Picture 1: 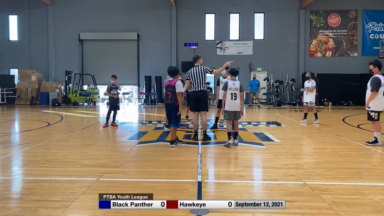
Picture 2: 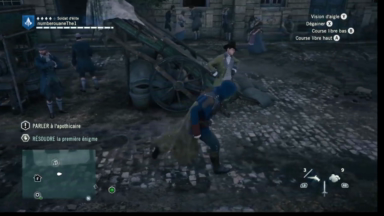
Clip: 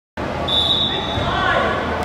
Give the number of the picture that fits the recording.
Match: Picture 1